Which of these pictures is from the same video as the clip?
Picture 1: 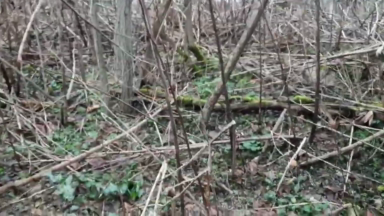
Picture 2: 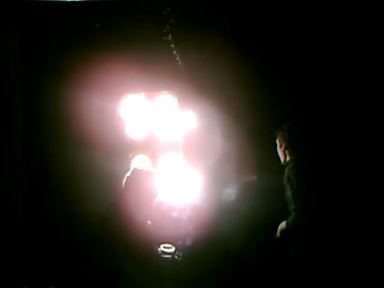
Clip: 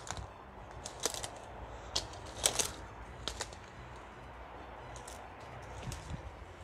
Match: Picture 1